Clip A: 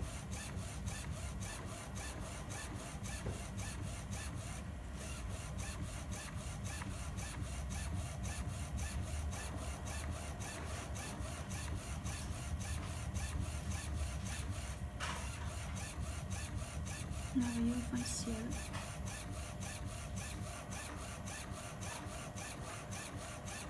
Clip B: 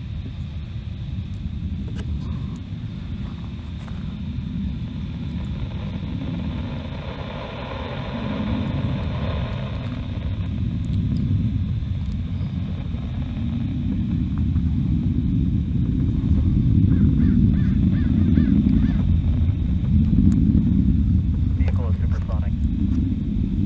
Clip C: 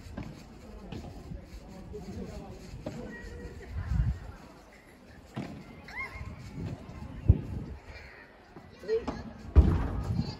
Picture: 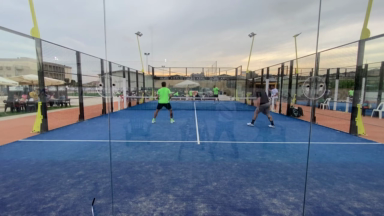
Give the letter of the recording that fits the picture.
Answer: C